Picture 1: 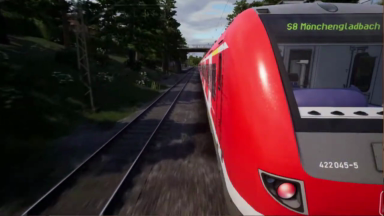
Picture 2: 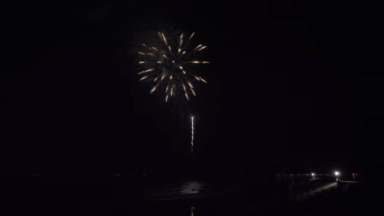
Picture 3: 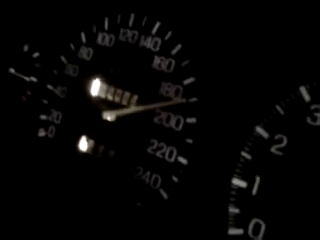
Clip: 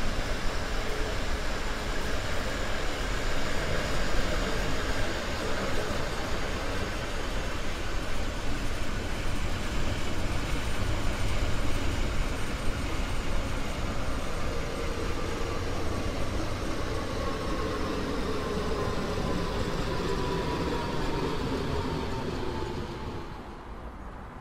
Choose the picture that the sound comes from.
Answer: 1